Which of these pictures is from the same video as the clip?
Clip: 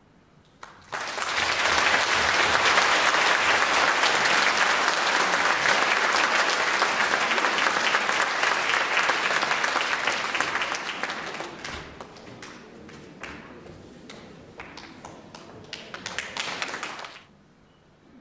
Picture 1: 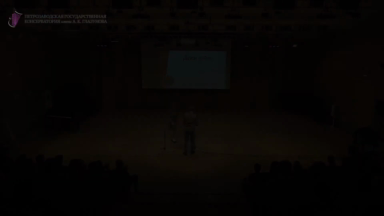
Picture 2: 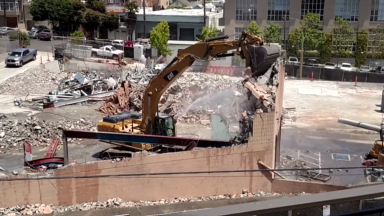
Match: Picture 1